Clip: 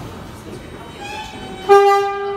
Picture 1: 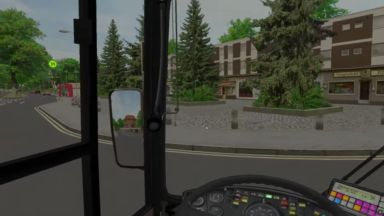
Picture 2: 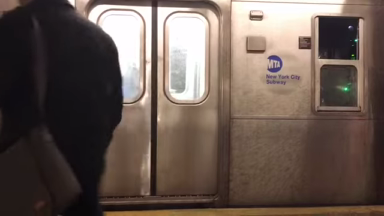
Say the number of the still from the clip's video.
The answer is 2